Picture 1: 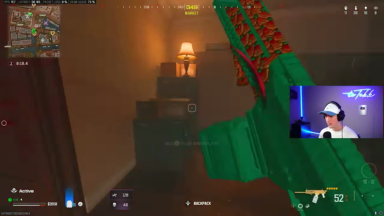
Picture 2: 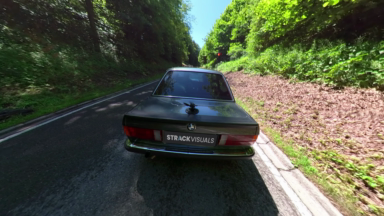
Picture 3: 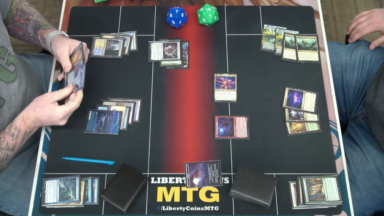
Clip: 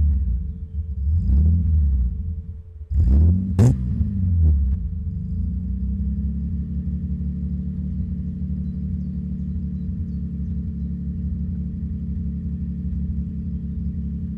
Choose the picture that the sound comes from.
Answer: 2